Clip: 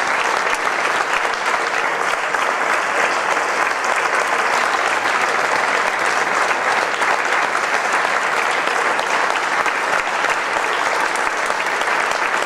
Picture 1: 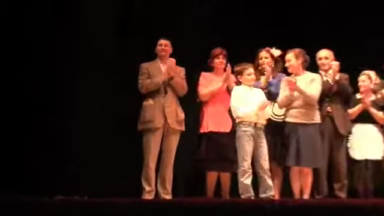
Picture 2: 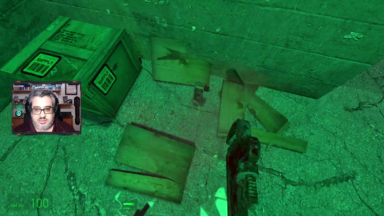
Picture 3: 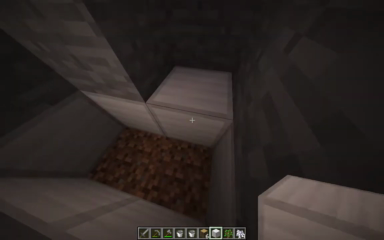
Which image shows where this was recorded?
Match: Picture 1